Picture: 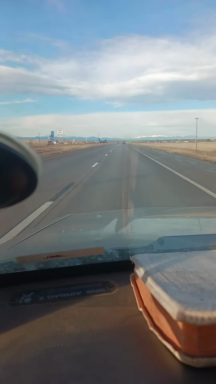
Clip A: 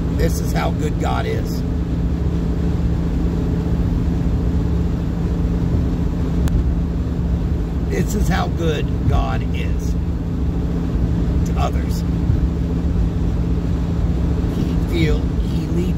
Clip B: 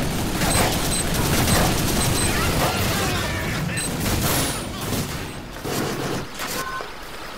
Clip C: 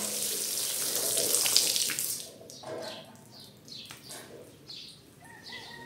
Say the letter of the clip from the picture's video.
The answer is A